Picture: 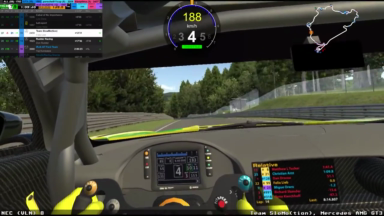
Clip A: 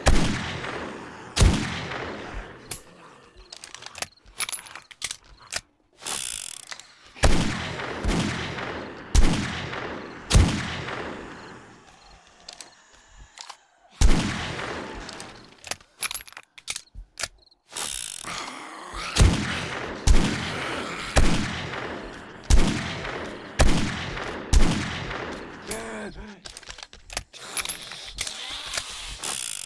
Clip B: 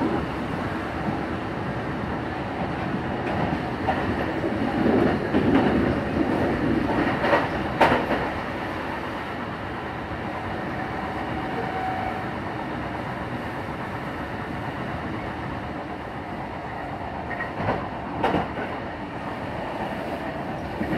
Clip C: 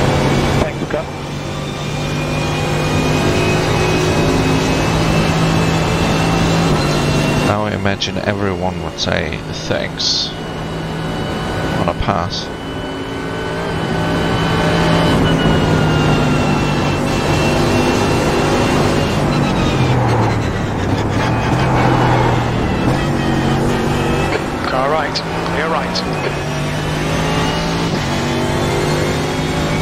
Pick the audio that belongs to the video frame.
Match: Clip C